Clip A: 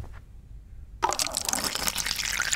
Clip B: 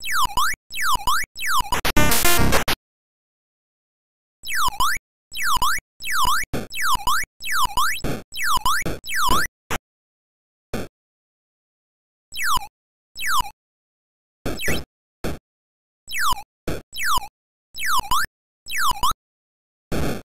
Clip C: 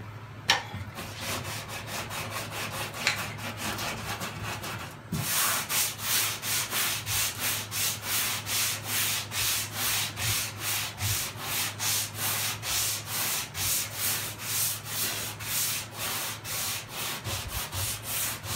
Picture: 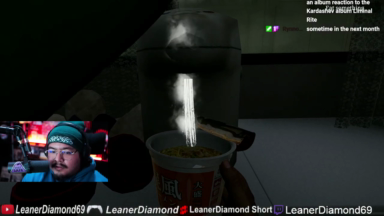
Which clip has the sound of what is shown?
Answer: A